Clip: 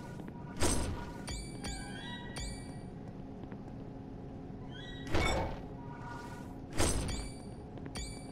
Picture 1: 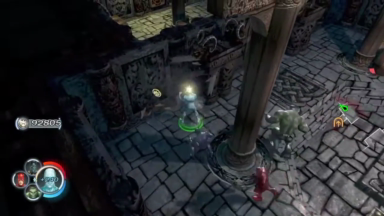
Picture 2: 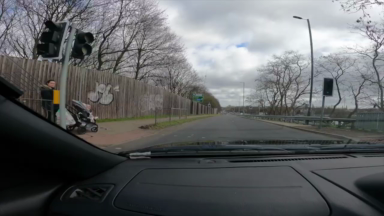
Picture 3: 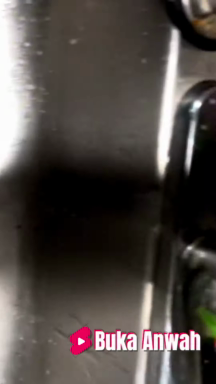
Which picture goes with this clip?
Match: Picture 1